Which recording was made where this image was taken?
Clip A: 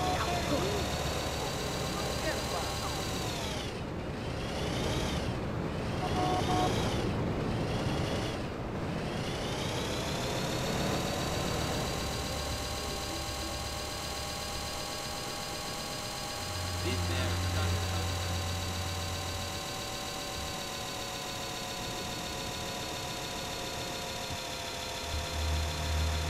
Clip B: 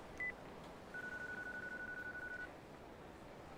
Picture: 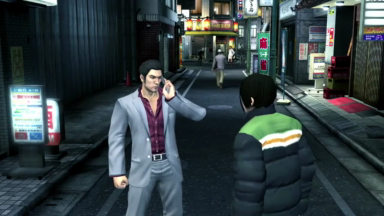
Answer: B